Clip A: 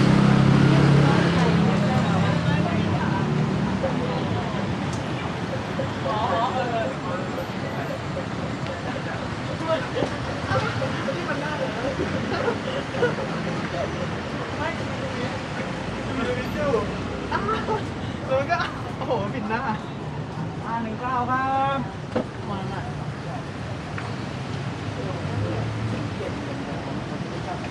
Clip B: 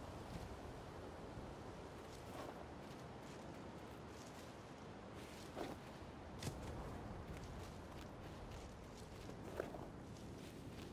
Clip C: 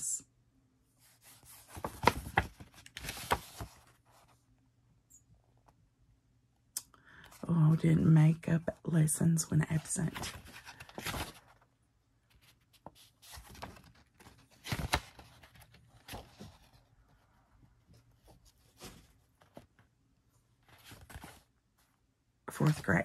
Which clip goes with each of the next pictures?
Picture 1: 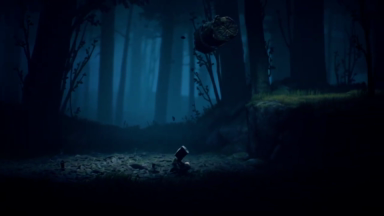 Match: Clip B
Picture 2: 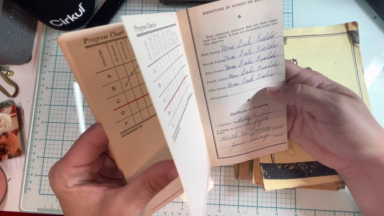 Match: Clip C